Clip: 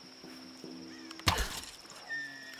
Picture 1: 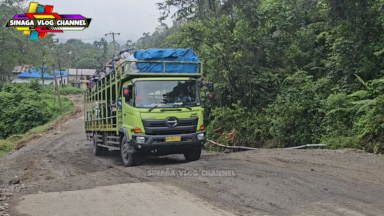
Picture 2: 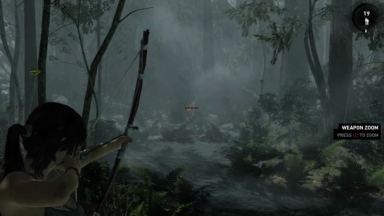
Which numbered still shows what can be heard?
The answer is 2